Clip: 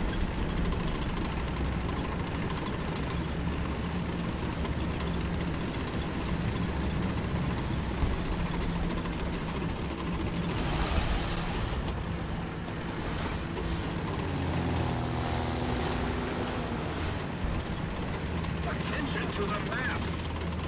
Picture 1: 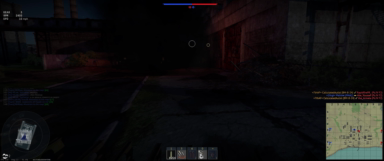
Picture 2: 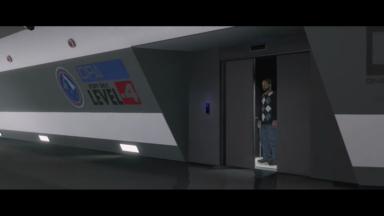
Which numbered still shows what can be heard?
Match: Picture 1